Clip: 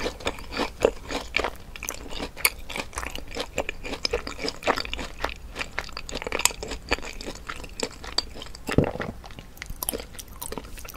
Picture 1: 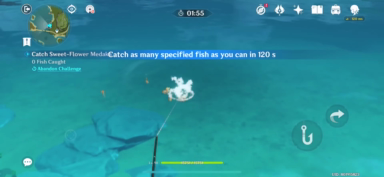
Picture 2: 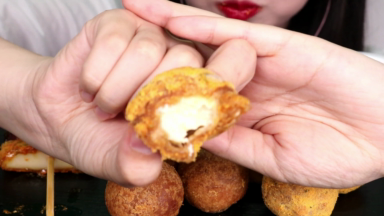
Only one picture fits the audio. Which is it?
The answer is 2